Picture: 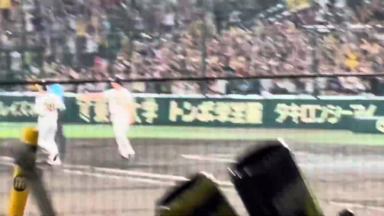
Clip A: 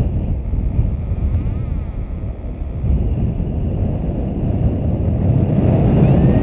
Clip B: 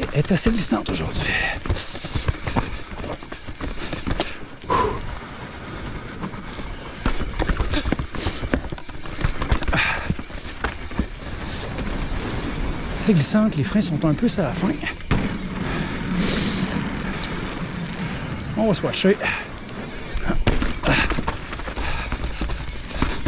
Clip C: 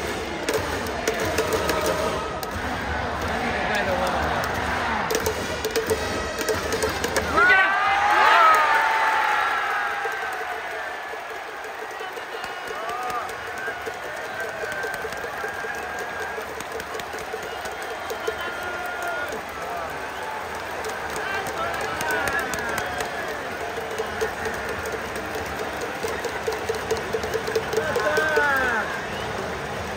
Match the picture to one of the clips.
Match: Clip C